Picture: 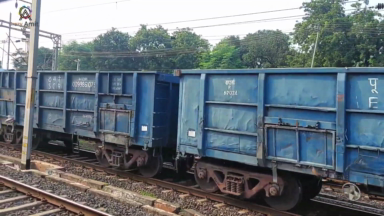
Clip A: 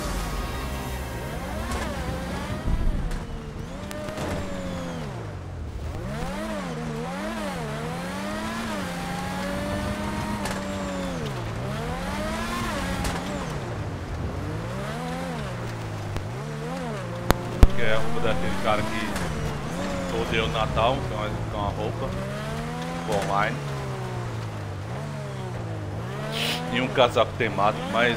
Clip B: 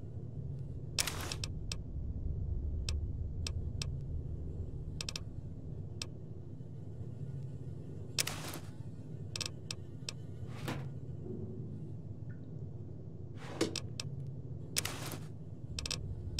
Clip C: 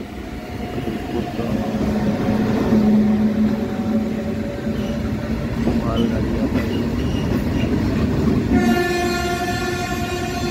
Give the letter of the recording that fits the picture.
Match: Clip C